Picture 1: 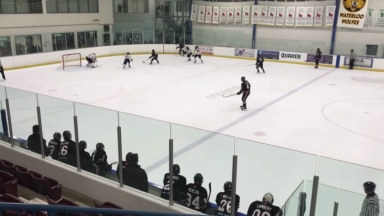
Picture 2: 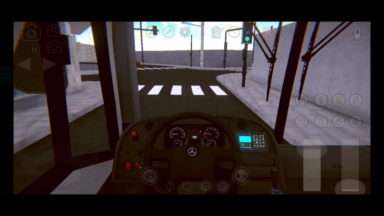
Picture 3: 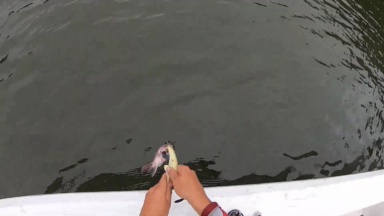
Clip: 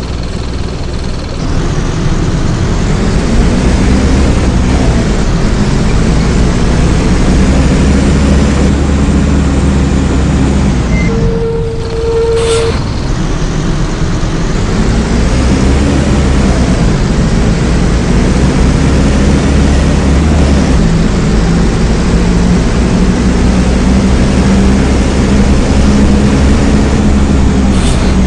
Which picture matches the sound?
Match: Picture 2